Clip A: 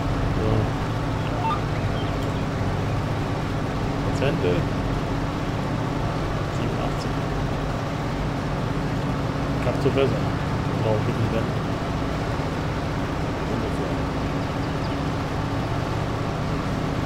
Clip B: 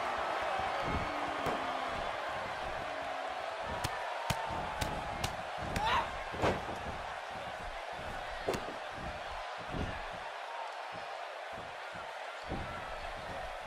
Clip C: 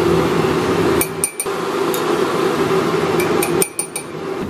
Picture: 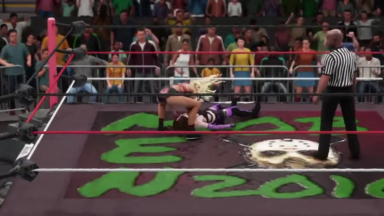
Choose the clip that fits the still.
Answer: B